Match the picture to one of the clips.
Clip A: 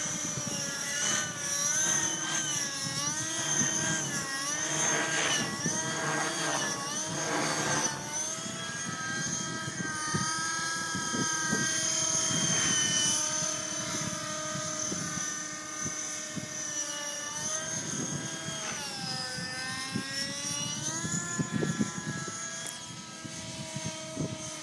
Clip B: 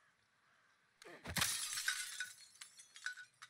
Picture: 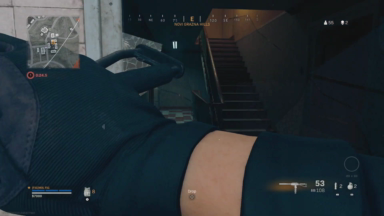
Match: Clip B